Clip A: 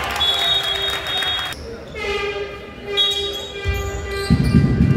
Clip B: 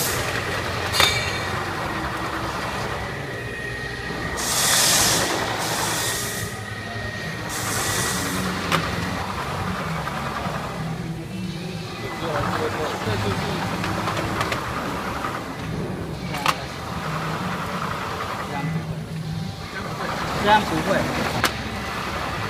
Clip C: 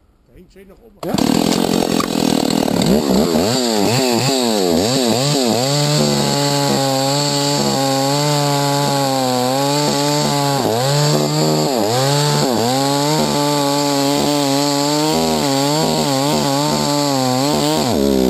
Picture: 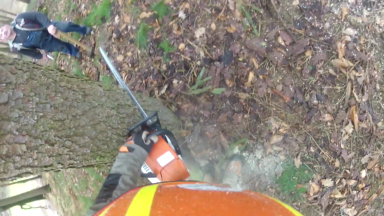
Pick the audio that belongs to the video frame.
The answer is C